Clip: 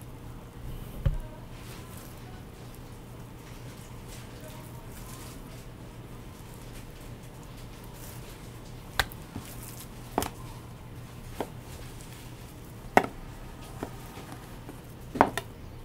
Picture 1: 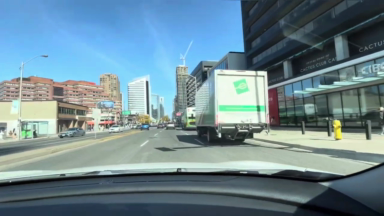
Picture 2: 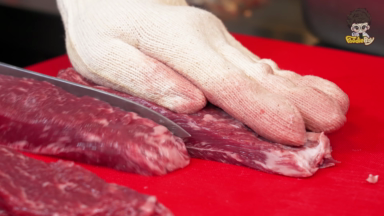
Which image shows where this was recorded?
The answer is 2